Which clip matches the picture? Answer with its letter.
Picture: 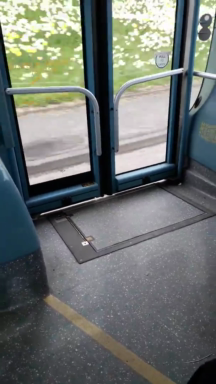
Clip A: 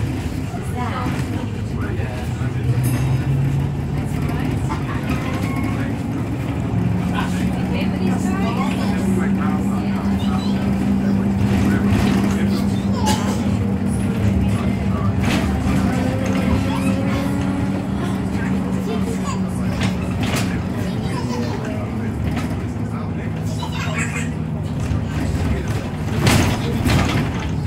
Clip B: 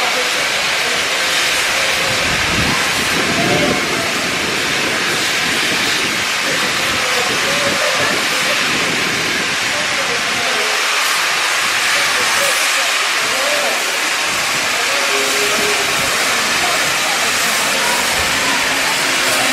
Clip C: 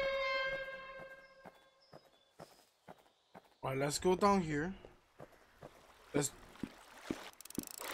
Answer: A